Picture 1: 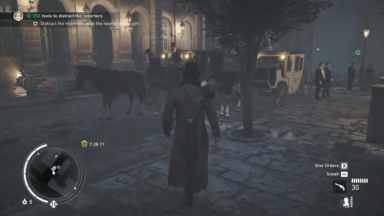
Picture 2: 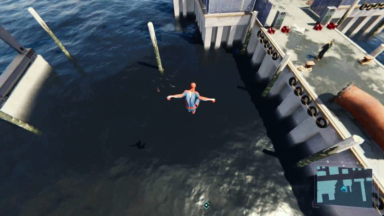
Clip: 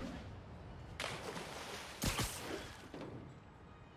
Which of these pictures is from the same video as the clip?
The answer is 2